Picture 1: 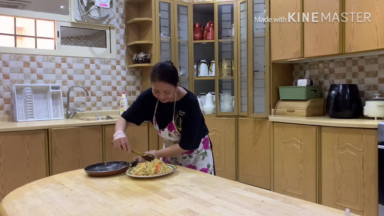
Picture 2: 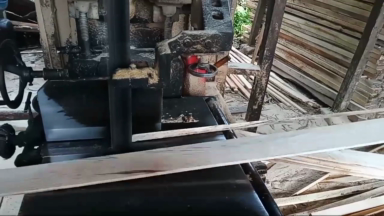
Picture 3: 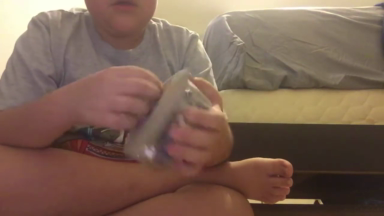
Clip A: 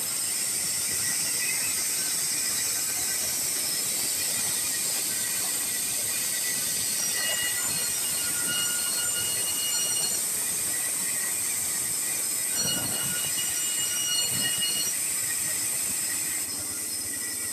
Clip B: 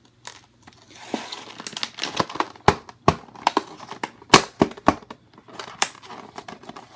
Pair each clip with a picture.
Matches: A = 2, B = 3